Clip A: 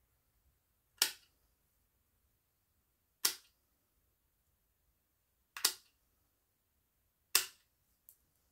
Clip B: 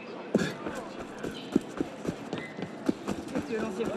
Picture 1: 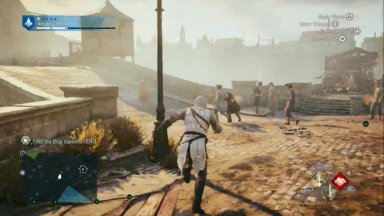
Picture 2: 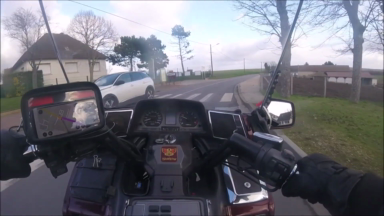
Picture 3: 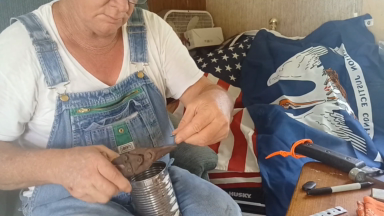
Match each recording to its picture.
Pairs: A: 3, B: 1